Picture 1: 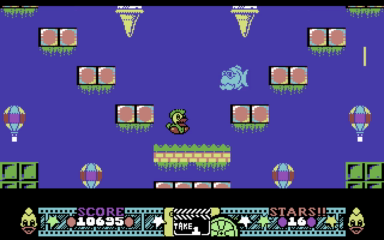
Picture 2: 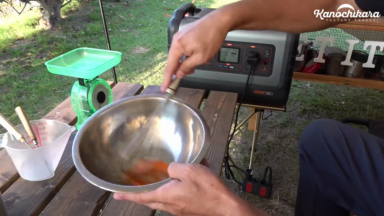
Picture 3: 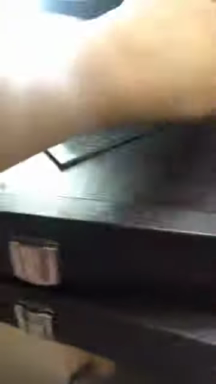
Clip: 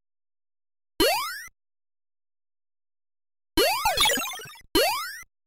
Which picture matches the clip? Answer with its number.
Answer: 1